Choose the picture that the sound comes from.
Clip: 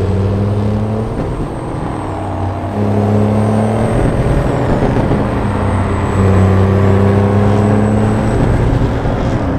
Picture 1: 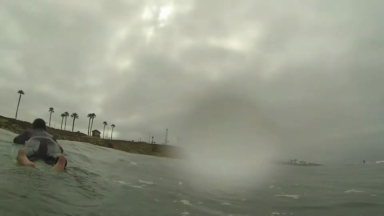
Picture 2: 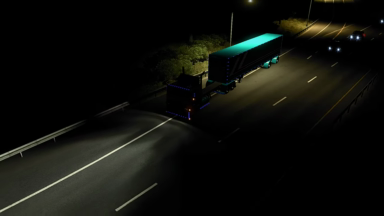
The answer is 2